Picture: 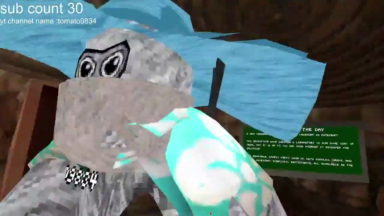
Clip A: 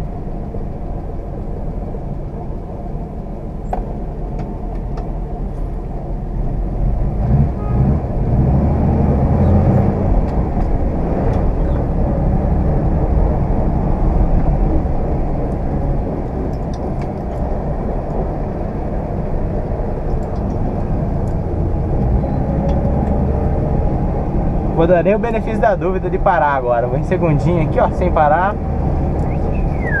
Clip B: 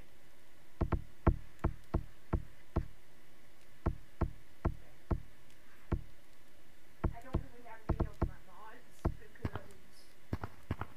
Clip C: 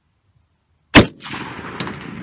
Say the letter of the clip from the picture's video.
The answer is B